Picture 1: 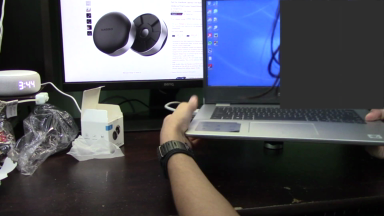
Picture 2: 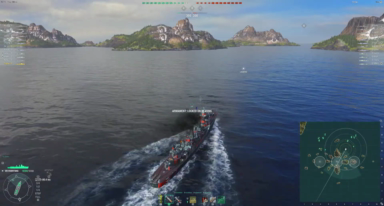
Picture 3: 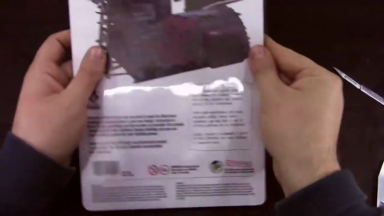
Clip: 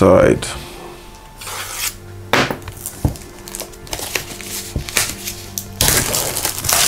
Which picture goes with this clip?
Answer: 3